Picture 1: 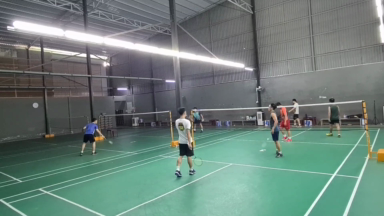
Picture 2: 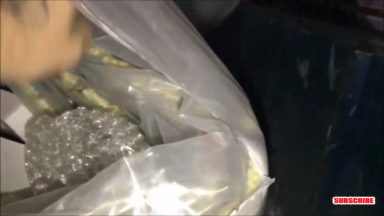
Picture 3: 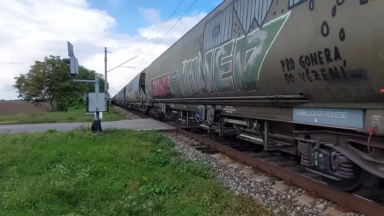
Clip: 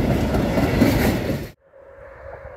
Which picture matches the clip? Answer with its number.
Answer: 3